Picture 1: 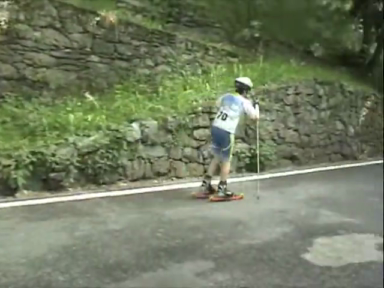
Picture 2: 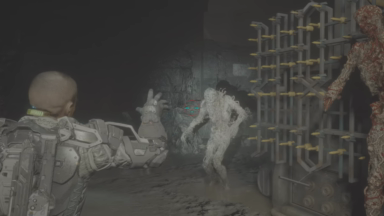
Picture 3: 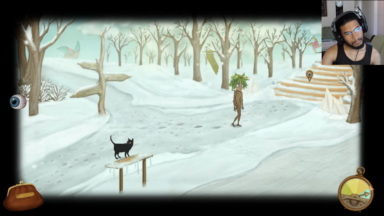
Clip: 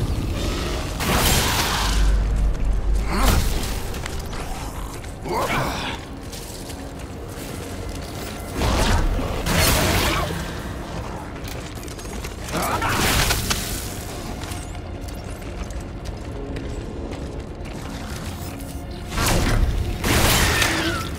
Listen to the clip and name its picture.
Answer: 2